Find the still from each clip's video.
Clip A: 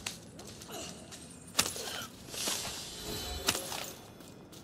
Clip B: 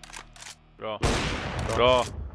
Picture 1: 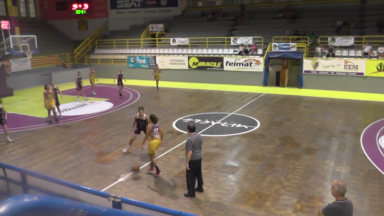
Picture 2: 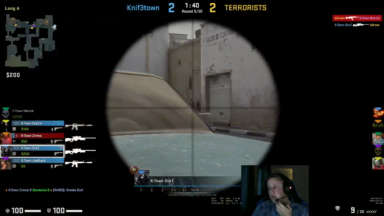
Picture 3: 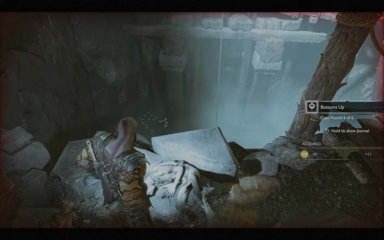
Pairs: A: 3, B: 2